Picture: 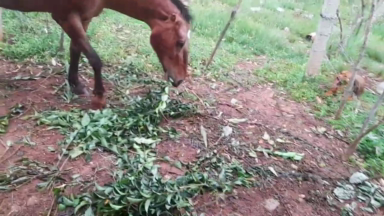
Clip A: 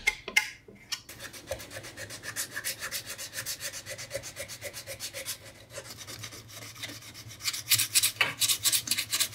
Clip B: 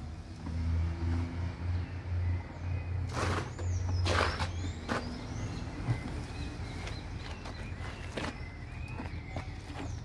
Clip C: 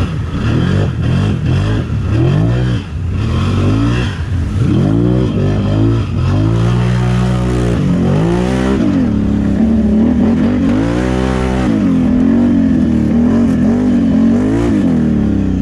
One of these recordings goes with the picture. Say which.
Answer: B